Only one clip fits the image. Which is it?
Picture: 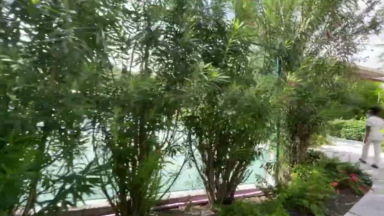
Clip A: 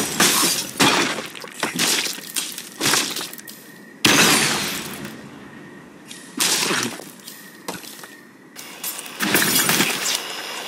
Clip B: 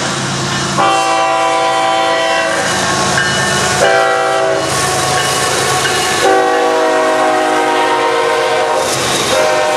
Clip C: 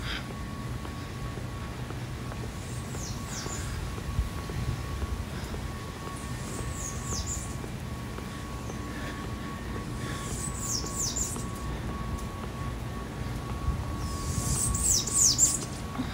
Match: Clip C